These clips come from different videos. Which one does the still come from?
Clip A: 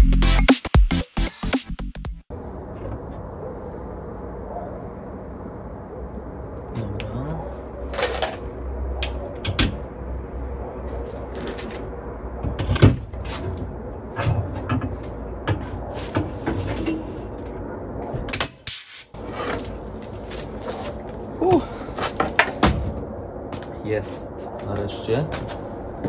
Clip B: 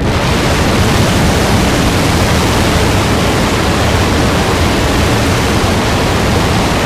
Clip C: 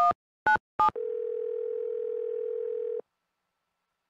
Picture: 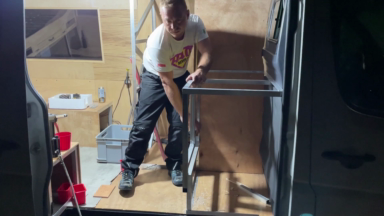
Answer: A